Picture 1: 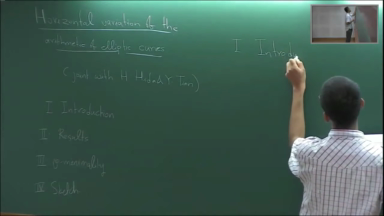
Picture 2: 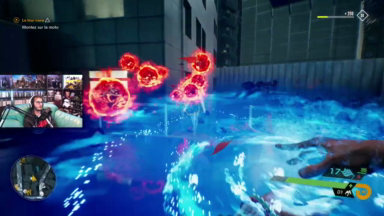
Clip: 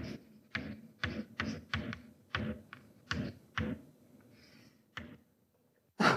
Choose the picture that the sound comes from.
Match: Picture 1